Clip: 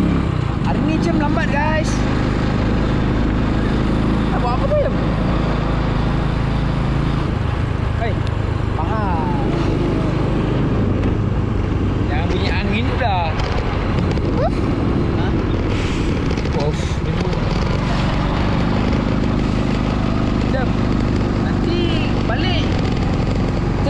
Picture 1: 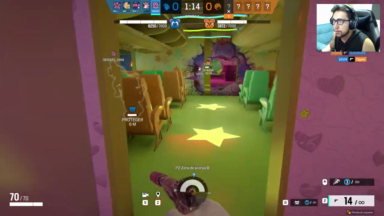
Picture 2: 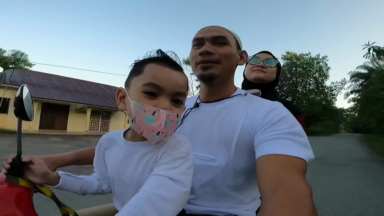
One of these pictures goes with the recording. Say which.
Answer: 2